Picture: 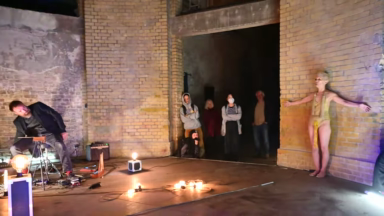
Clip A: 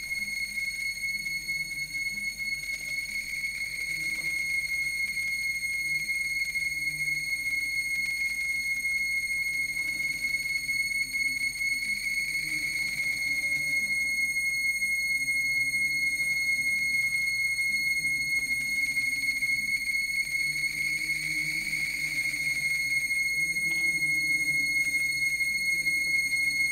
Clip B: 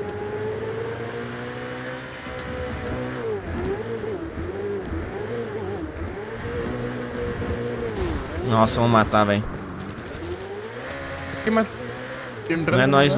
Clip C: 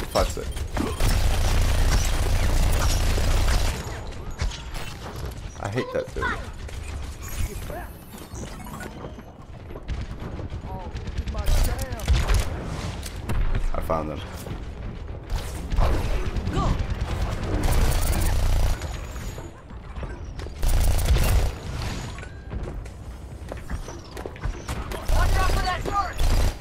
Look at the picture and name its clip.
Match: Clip A